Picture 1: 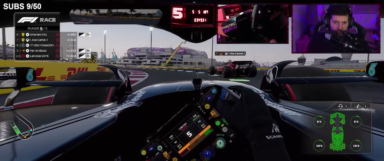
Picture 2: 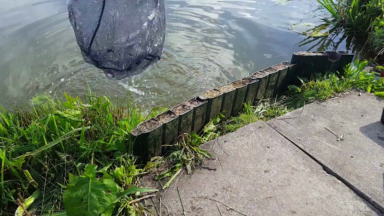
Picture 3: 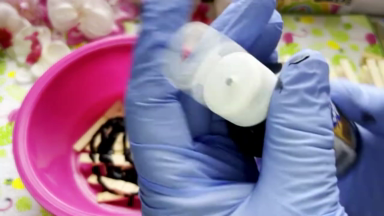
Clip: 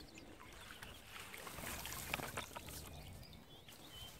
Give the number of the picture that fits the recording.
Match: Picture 2